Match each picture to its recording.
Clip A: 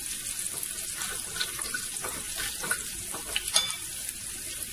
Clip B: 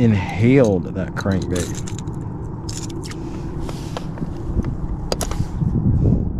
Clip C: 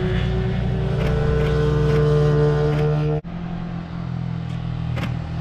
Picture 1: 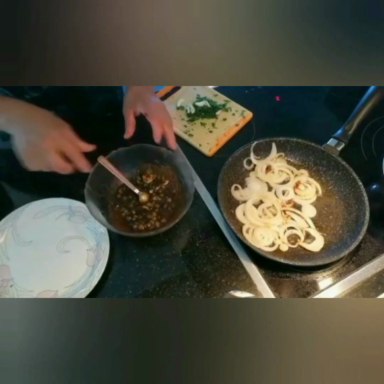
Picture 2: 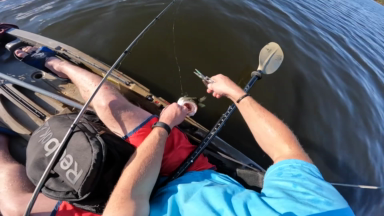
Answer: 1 A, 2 B